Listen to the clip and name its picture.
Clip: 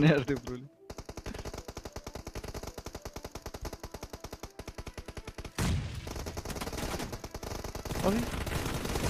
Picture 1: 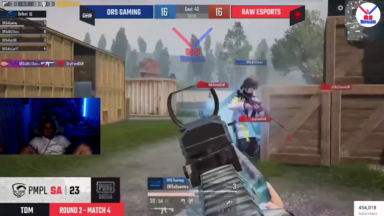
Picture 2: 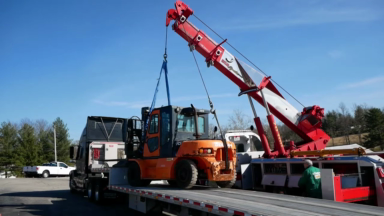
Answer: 1